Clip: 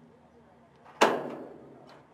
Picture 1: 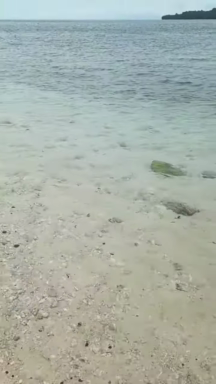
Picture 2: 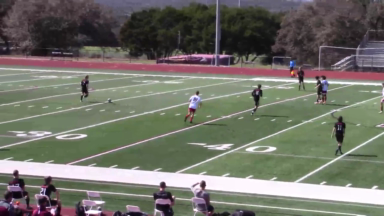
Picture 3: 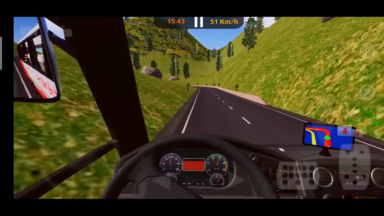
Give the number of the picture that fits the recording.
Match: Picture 2